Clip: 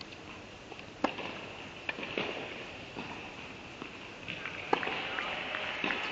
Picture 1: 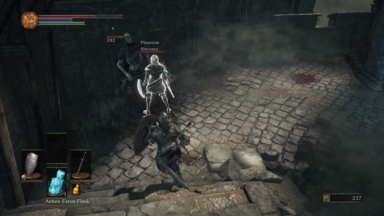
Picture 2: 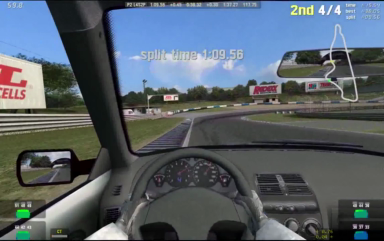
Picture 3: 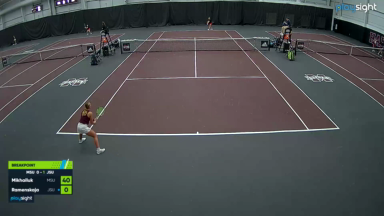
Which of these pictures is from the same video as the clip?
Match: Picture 3